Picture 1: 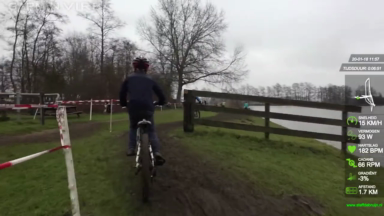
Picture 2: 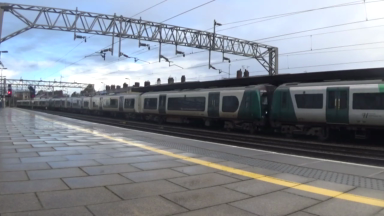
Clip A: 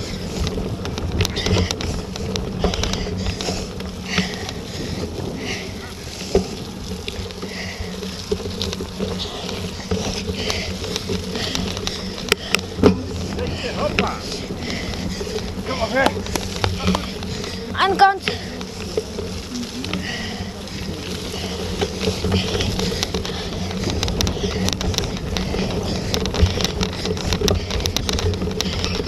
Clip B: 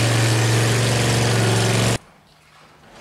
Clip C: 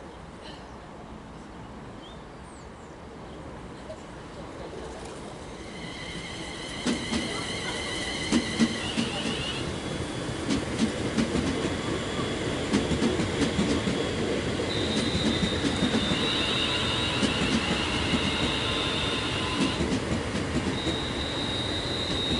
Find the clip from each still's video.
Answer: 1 A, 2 C